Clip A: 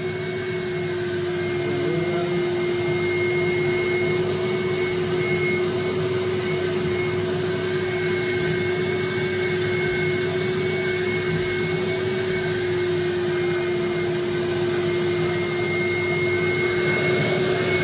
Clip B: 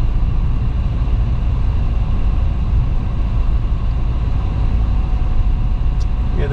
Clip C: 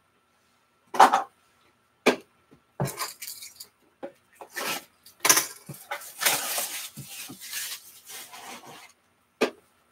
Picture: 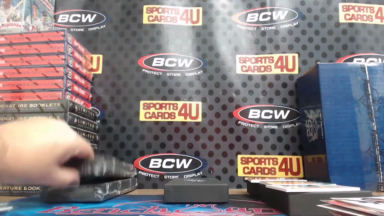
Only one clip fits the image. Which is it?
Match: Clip C